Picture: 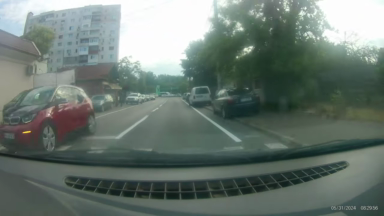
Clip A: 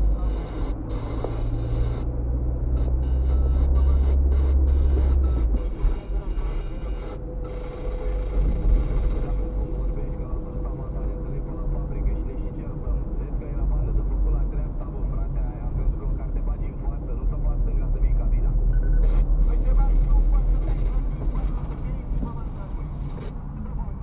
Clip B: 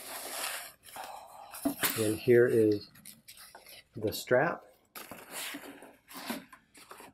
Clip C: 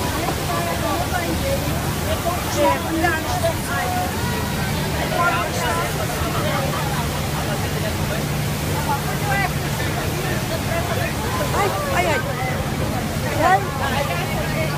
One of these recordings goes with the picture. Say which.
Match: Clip A